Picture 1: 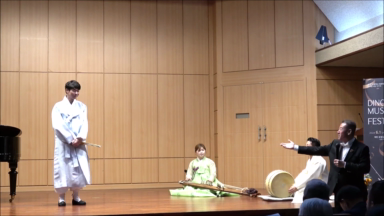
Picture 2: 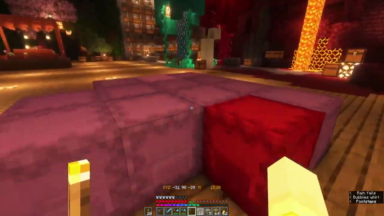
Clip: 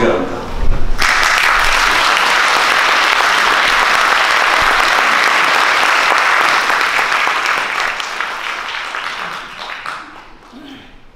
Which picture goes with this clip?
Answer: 1